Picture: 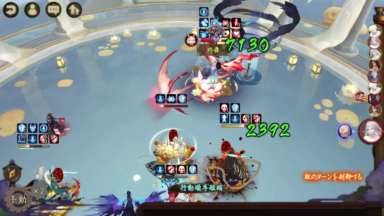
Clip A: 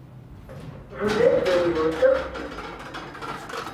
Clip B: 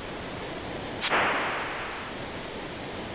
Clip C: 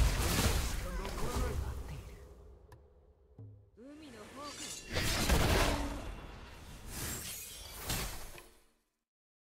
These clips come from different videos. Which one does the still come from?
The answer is C